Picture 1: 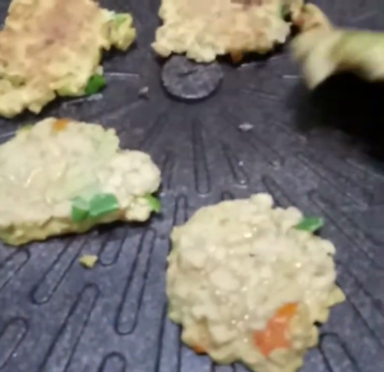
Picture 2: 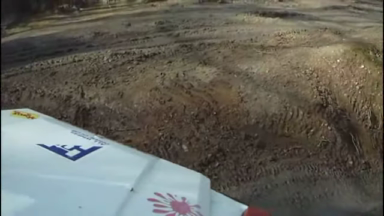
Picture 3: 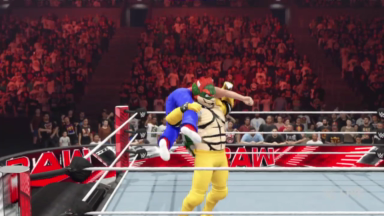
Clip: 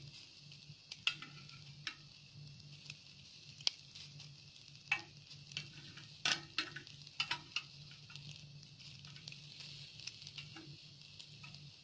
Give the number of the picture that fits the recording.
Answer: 1